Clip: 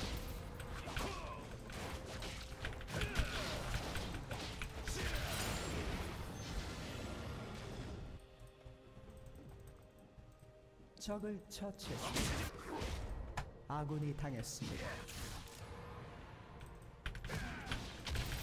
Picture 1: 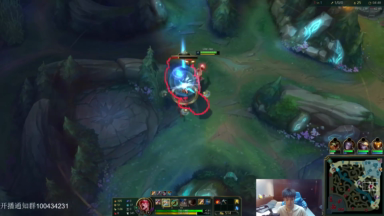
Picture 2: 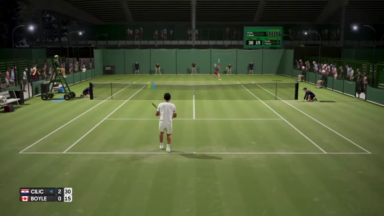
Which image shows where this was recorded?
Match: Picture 1